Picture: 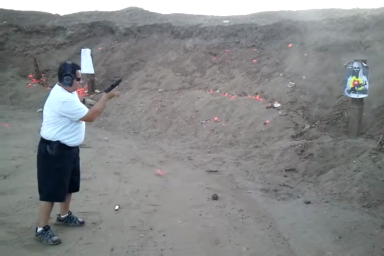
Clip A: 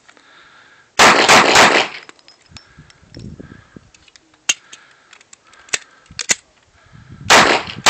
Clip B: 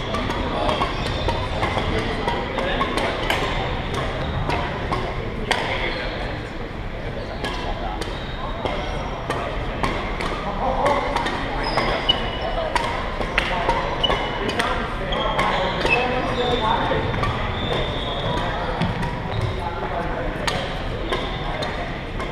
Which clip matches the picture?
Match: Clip A